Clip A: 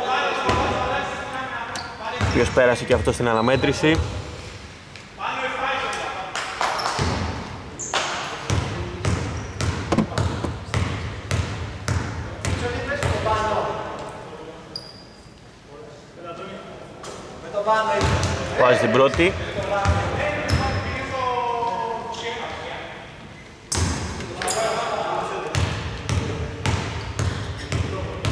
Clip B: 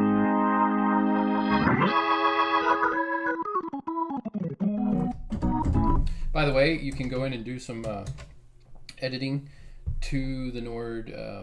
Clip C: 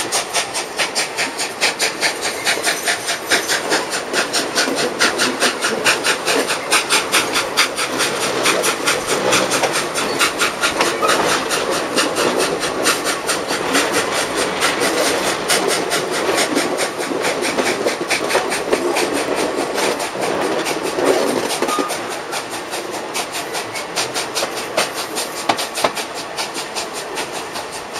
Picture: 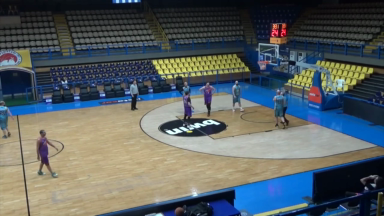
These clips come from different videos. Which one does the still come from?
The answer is A